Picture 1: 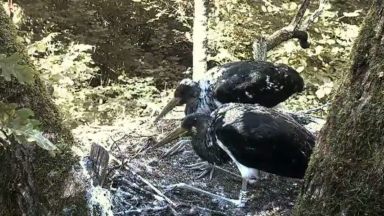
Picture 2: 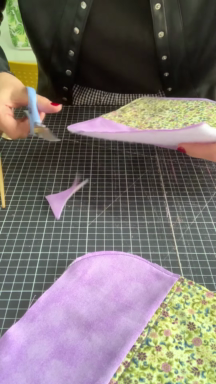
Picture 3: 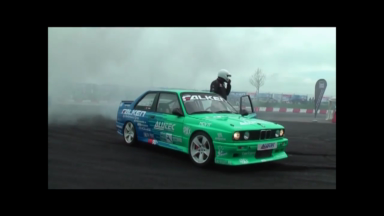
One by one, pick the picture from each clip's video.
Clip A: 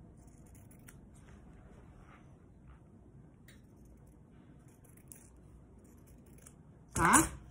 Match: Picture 2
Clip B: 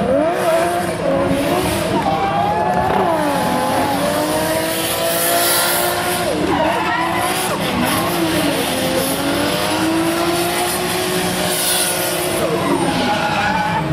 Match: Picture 3